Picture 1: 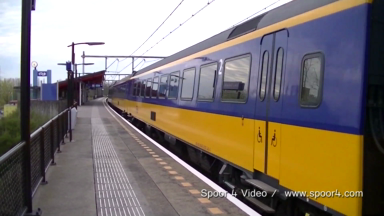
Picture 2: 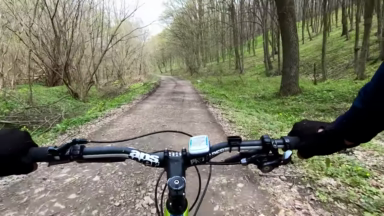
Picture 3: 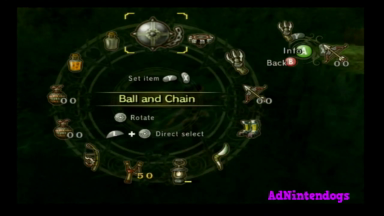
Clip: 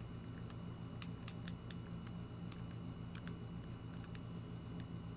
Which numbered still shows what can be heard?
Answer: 3